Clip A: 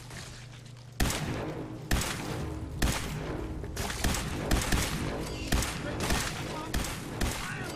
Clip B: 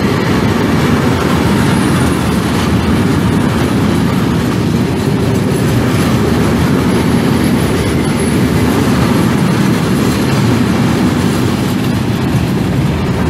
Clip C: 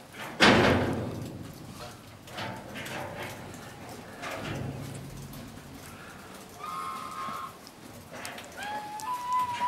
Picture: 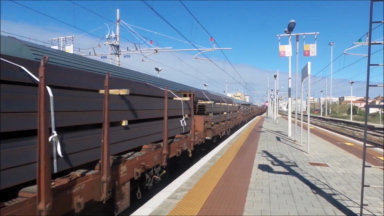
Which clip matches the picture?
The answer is B